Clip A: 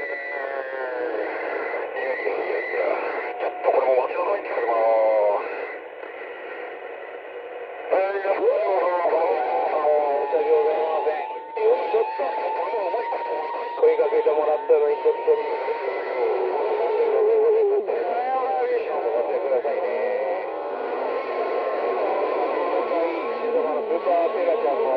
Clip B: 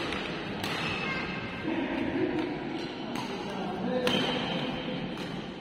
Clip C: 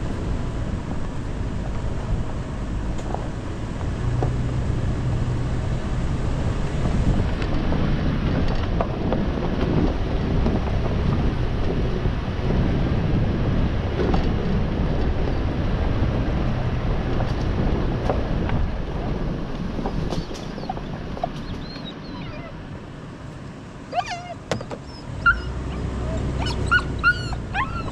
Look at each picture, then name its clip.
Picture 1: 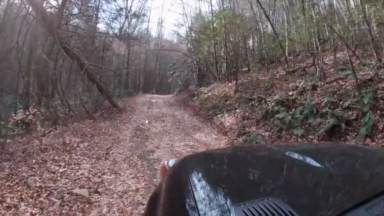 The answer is C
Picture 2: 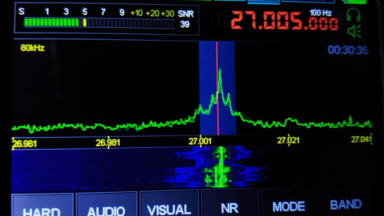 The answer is A